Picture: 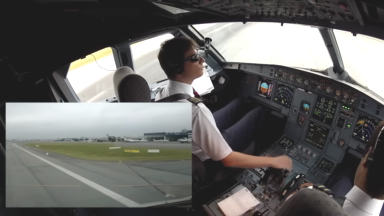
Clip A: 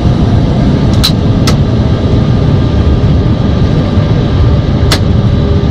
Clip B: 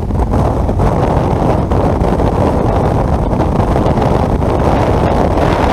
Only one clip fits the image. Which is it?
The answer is A